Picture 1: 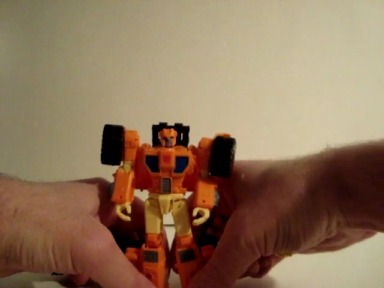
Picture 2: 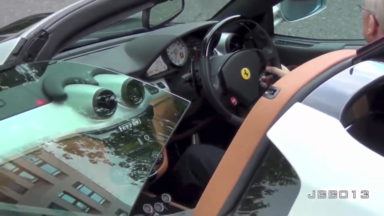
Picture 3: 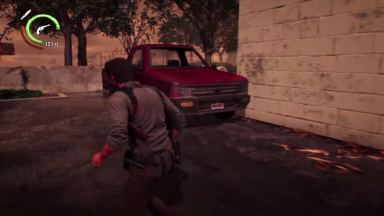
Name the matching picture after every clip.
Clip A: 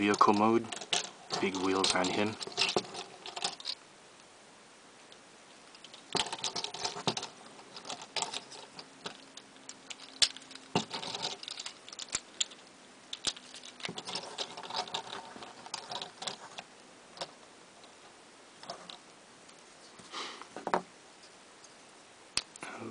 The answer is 1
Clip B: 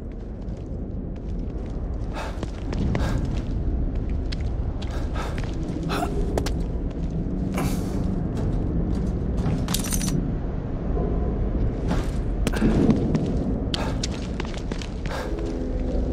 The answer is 3